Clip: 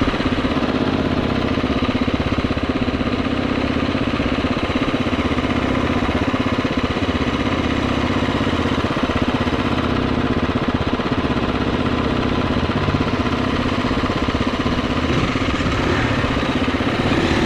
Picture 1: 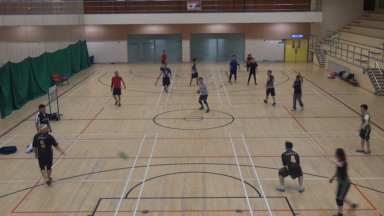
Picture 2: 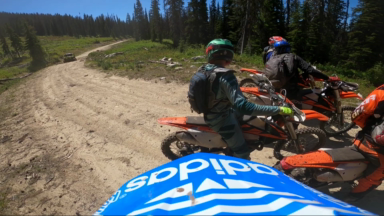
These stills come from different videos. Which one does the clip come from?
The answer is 2